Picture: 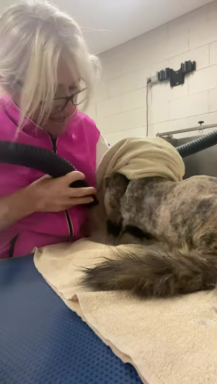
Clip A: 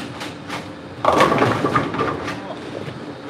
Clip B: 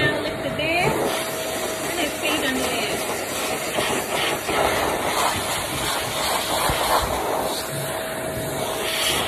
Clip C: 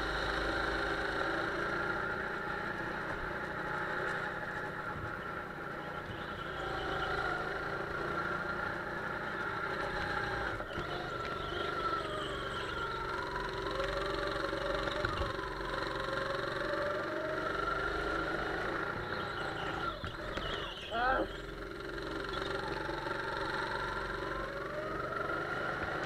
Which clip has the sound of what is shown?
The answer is B